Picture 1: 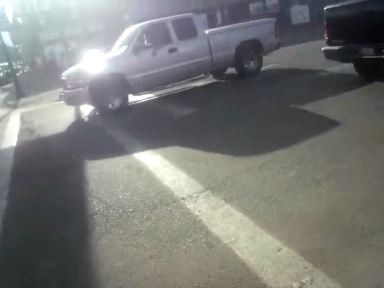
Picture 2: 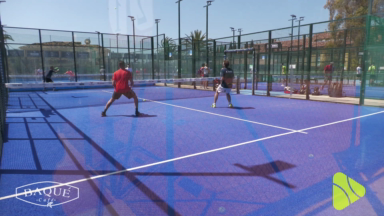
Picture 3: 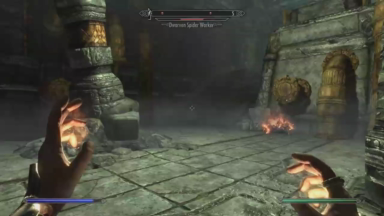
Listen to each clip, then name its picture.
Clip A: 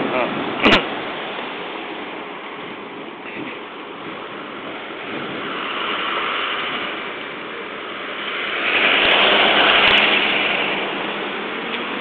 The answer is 1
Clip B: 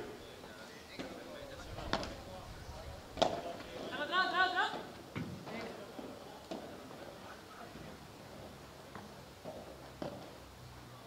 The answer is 2